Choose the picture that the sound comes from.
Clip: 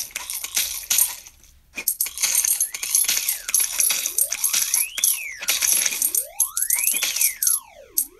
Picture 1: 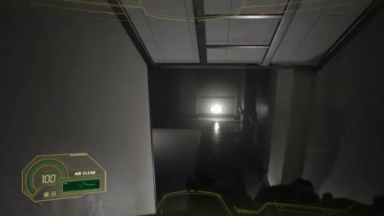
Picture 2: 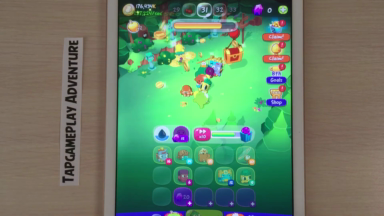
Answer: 2